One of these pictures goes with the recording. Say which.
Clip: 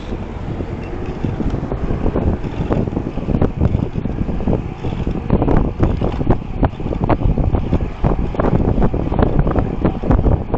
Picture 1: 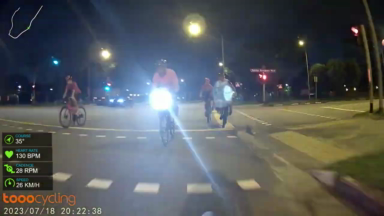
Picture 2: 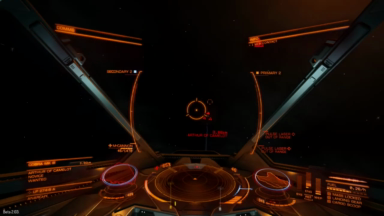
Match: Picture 1